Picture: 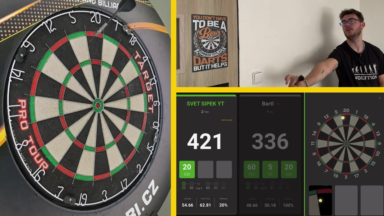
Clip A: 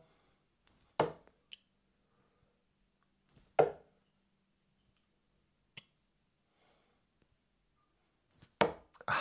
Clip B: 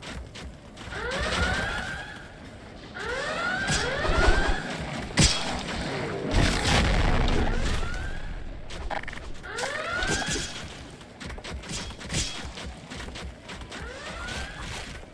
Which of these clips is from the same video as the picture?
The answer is A